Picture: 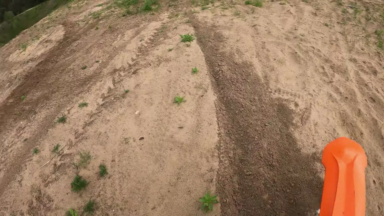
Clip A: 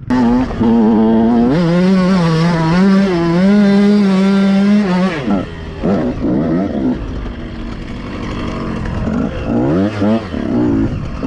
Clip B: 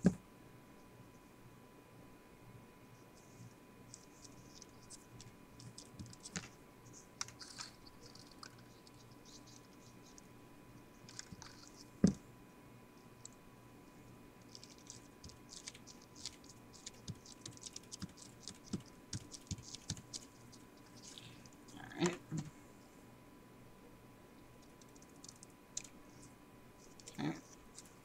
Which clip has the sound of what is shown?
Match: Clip A